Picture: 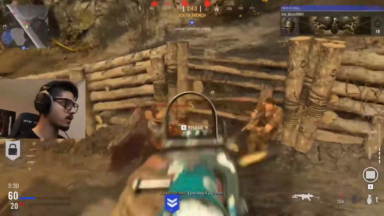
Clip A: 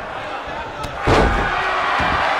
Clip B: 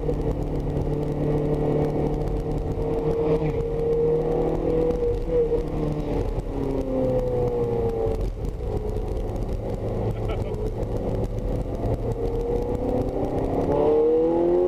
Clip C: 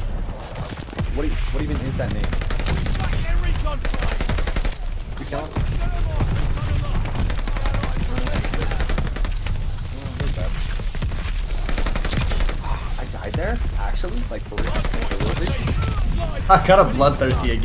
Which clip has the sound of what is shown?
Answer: C